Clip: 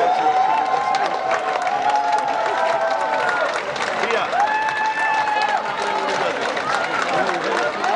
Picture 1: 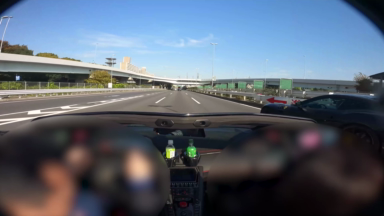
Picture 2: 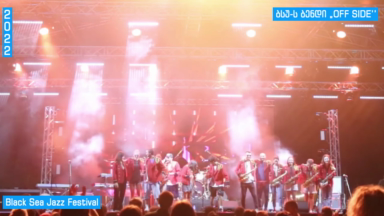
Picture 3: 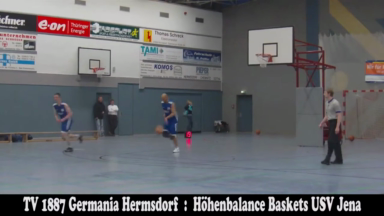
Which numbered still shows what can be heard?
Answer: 2